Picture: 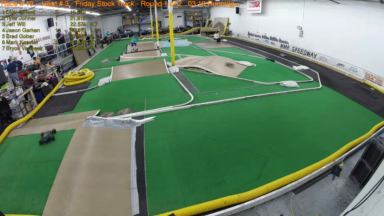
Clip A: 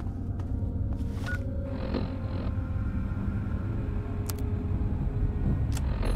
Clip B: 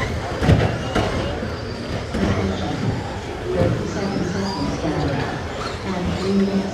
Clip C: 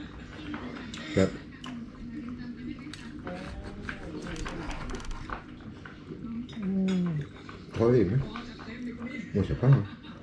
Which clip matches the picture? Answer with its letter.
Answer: B